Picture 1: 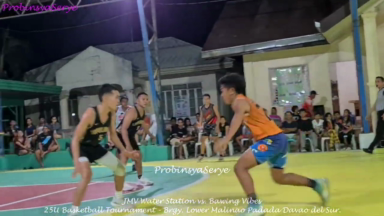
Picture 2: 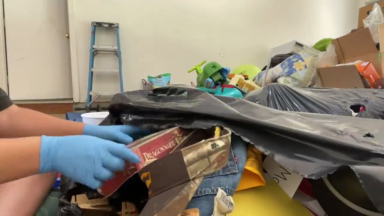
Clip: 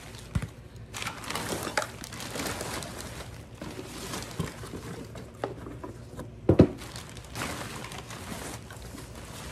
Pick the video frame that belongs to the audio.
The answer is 2